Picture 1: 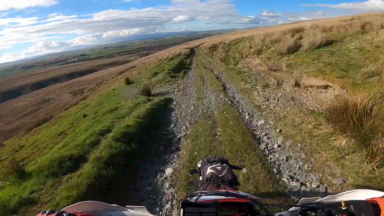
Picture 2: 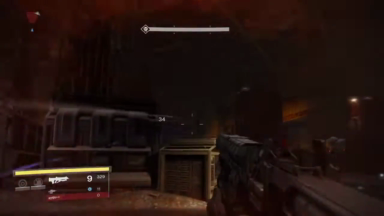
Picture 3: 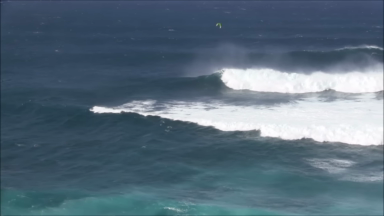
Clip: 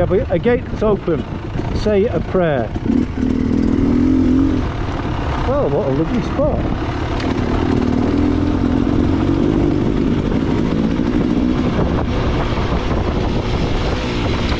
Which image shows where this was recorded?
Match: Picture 1